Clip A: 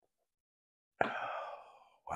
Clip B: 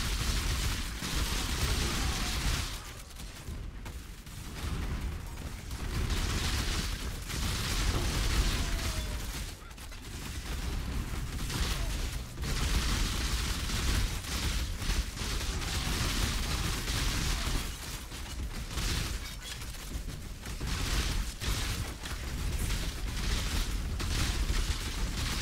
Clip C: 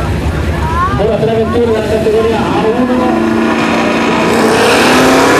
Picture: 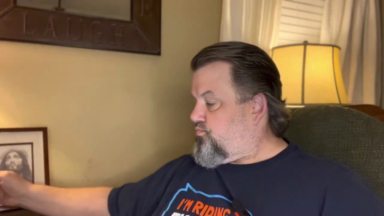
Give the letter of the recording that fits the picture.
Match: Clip A